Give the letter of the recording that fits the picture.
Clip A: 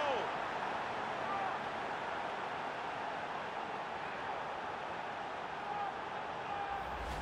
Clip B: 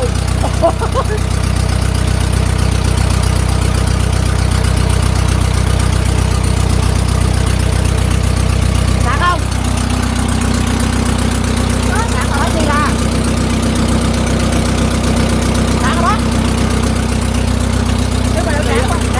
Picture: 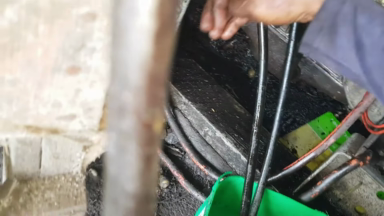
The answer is B